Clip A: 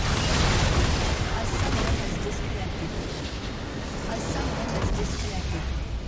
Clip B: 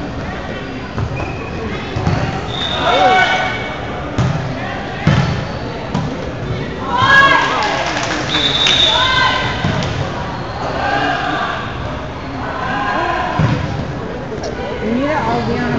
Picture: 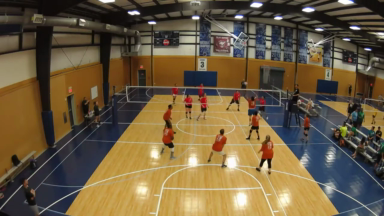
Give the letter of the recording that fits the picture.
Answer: B